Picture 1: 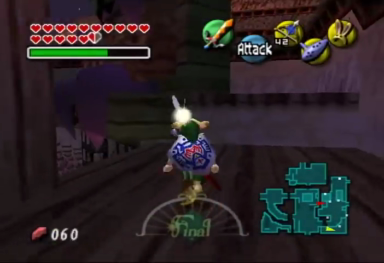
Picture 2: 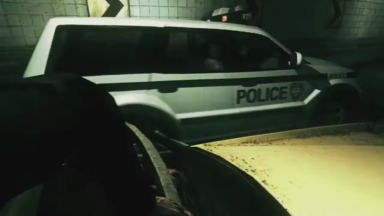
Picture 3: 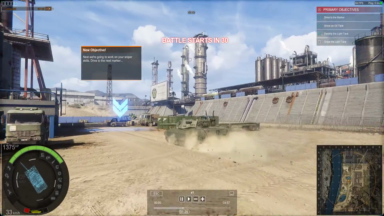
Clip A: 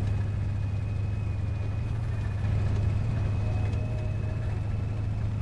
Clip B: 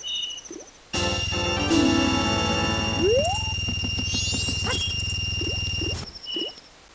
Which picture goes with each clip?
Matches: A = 3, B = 1